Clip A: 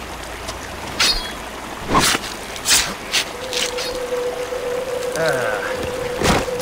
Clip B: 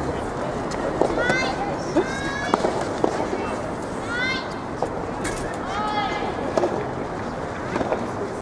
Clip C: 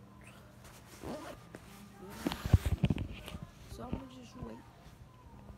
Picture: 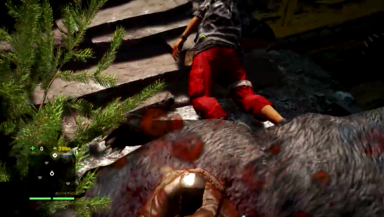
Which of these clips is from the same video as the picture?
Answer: A